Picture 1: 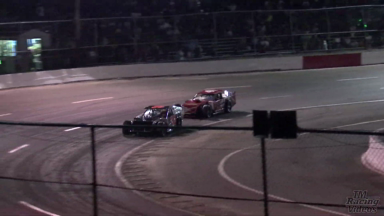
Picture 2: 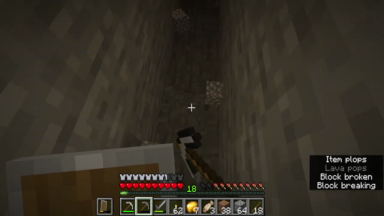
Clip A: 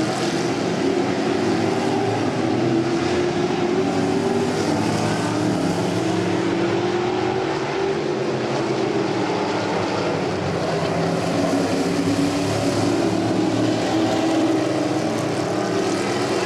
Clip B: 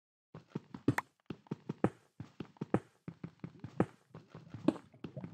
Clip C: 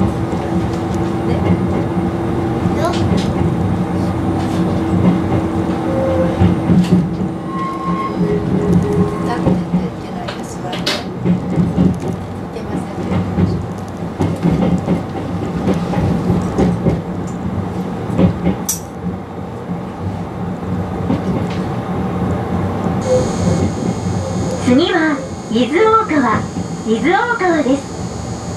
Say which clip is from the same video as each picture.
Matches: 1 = A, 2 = B